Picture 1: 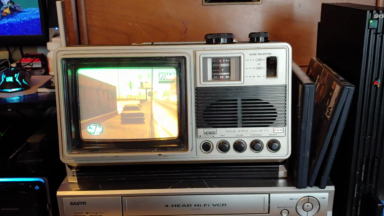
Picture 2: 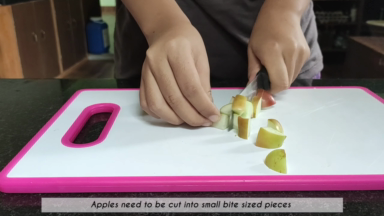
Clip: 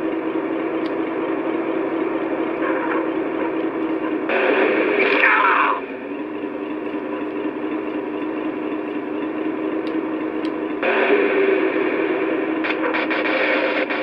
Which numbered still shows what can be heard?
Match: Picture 1